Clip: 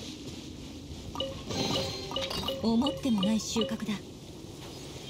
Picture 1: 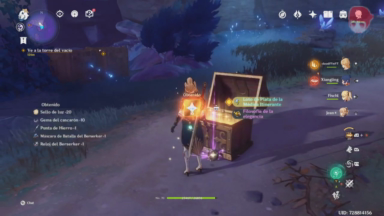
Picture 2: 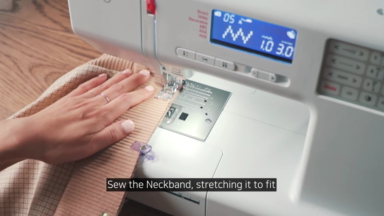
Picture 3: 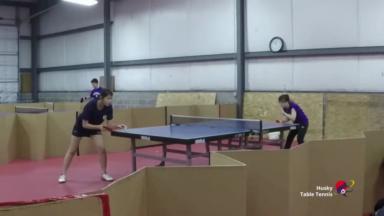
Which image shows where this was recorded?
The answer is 1